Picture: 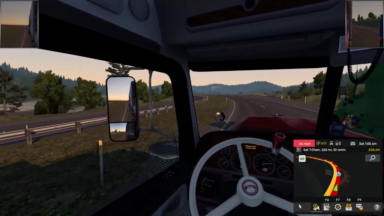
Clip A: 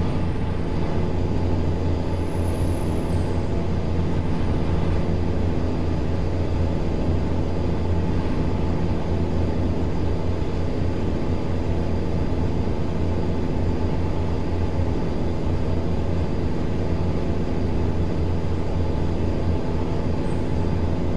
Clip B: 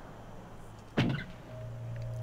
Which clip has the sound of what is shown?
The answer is A